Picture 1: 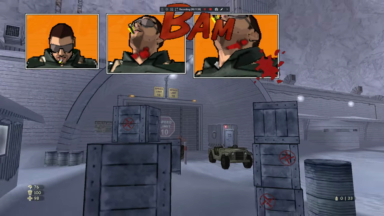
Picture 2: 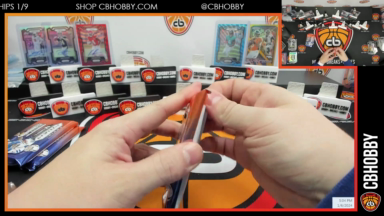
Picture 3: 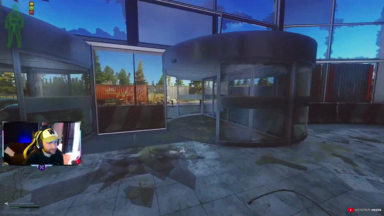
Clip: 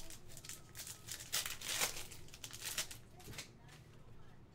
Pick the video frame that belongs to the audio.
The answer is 2